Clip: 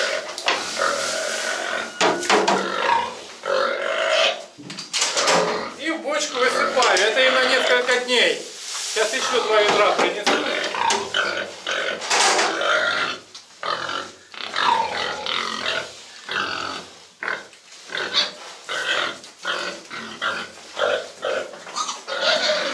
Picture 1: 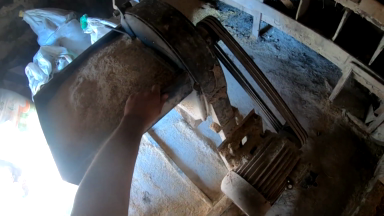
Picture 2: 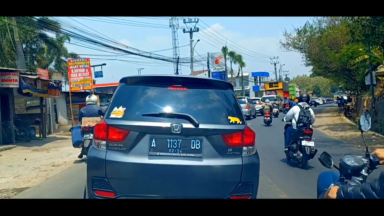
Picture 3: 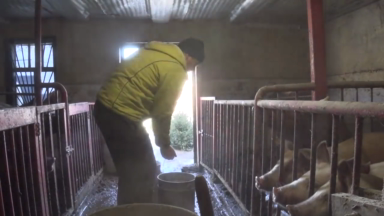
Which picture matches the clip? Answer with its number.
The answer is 3